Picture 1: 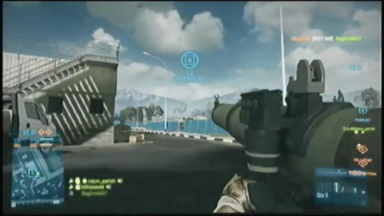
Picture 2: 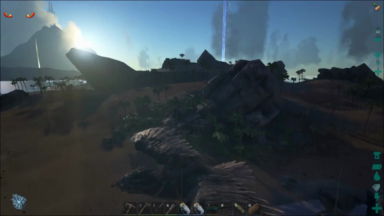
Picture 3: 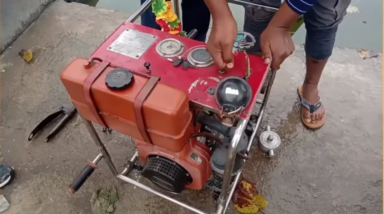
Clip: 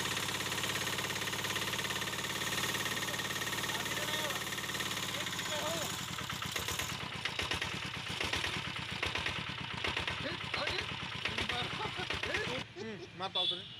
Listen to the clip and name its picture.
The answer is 3